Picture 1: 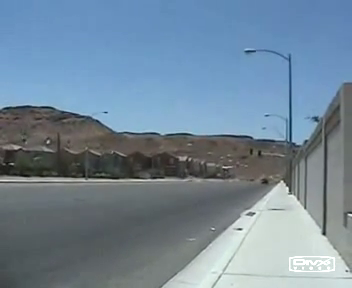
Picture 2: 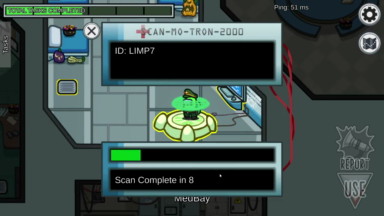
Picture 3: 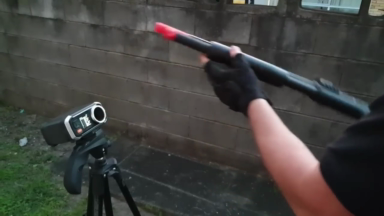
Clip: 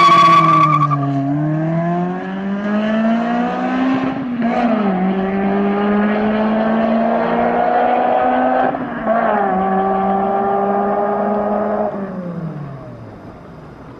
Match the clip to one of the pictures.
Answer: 1